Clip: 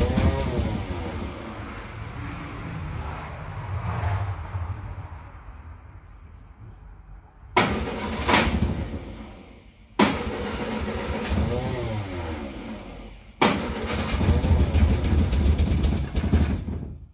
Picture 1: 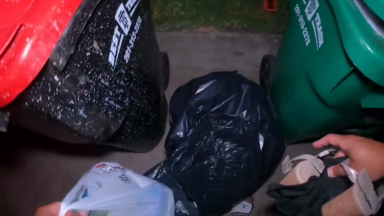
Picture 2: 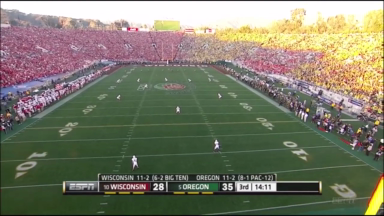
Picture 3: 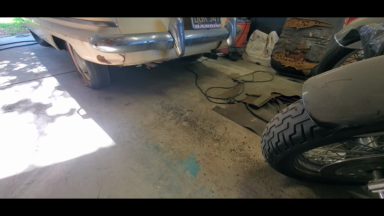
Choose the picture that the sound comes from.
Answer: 3